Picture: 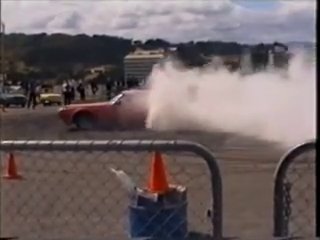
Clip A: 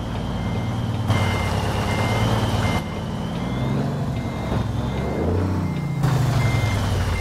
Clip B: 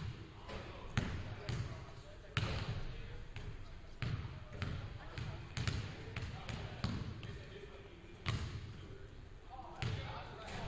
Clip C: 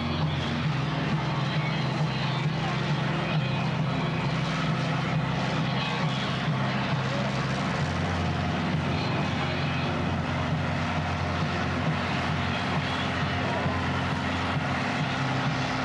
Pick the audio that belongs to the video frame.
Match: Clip C